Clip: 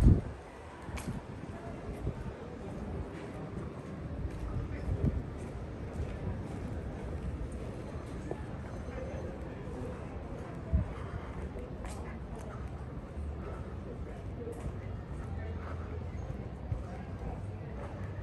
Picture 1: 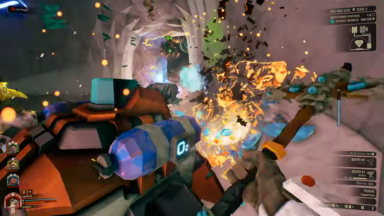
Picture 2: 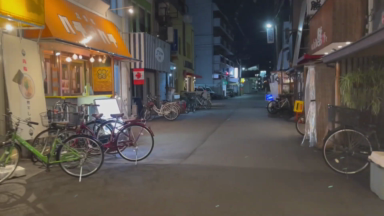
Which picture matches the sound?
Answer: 2